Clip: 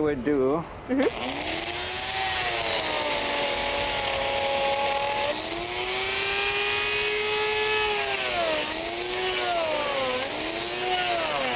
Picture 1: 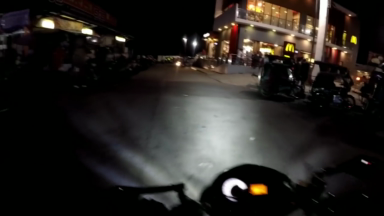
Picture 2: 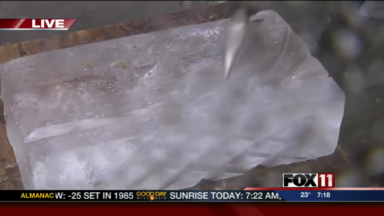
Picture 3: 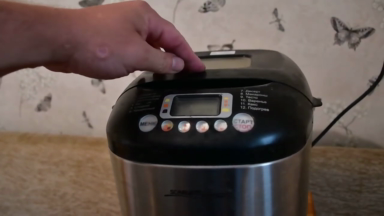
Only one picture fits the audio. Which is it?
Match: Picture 2